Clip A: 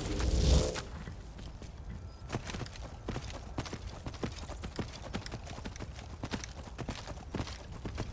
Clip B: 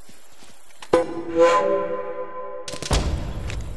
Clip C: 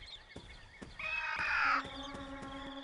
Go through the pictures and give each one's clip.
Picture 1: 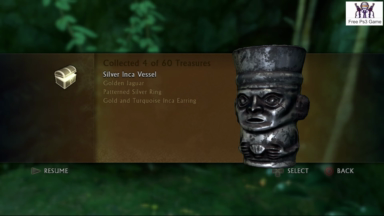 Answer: B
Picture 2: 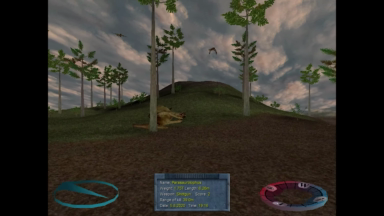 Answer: C